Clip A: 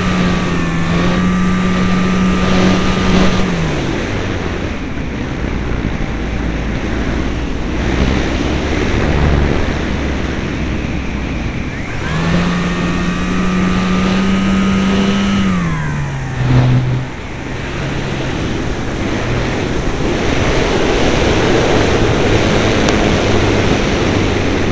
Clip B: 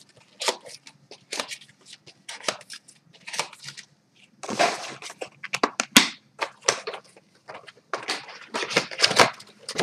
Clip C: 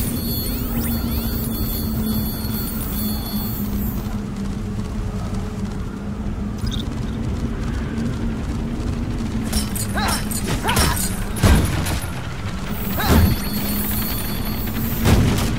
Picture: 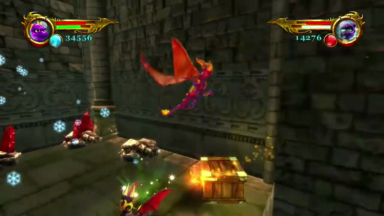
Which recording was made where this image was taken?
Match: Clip C